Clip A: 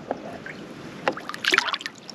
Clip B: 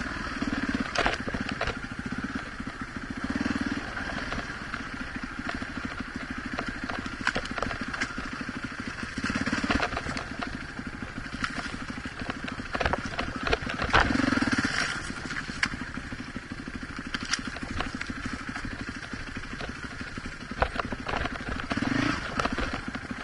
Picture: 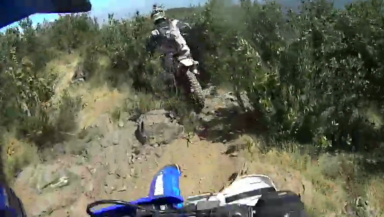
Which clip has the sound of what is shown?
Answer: B